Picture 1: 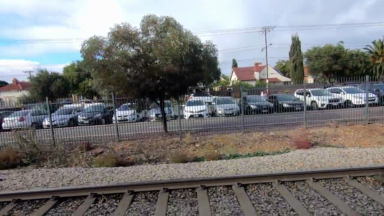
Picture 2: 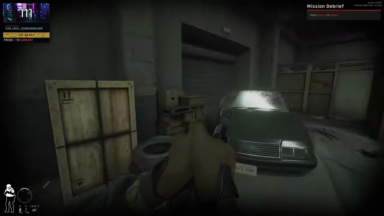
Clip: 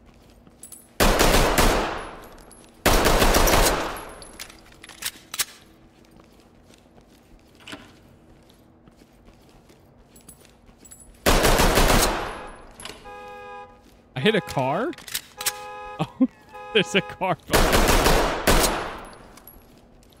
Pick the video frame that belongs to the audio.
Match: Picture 2